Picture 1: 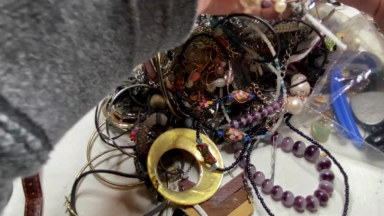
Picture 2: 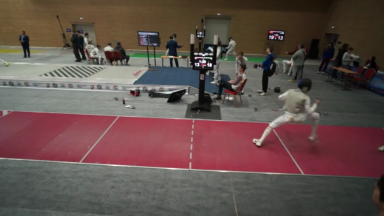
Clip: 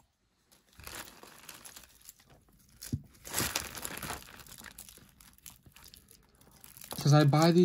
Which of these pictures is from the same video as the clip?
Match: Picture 1